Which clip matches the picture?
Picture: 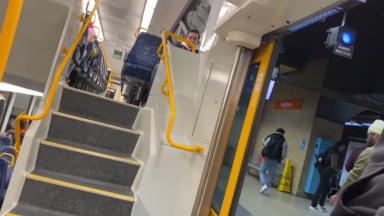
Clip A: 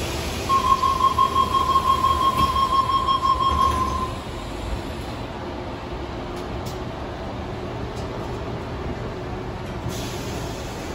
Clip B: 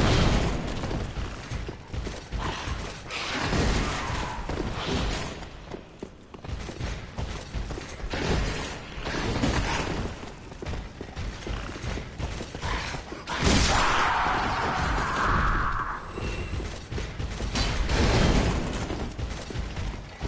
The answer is A